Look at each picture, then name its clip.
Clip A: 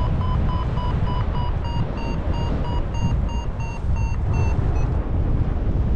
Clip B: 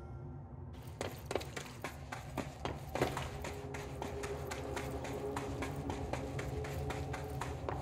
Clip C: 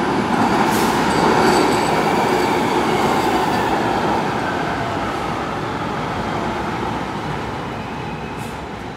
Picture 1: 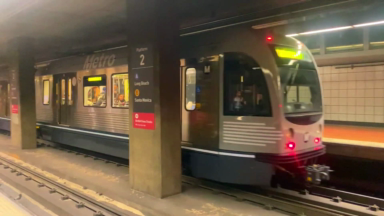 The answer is C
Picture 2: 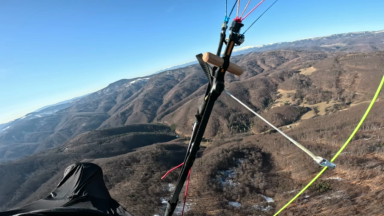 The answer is A